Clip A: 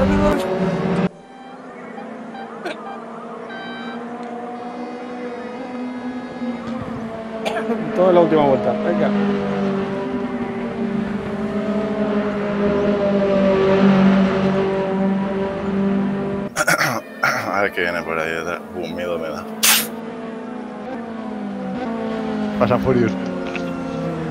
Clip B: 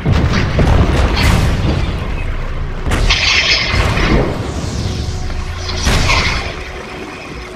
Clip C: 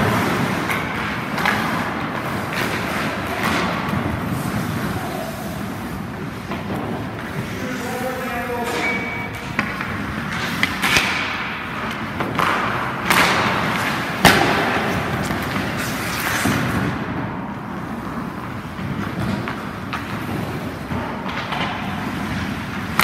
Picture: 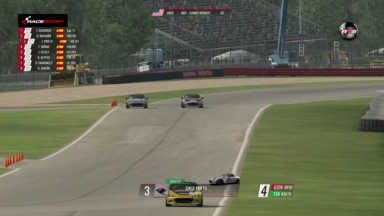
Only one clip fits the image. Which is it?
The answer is A